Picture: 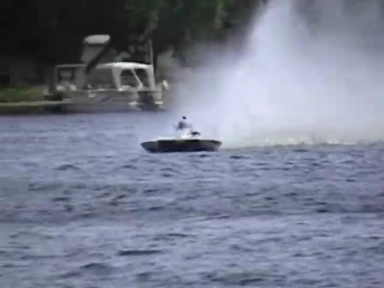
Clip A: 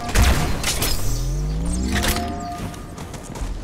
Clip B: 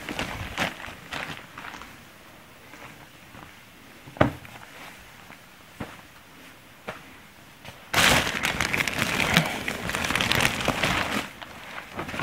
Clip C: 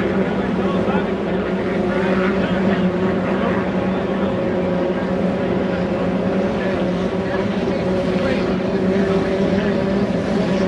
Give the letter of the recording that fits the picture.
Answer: C